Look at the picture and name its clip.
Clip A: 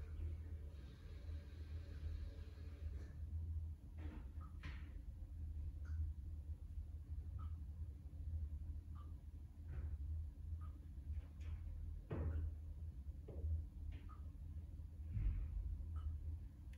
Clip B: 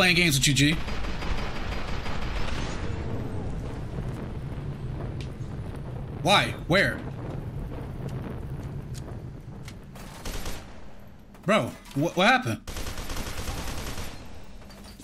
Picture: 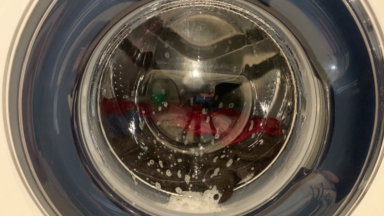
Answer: A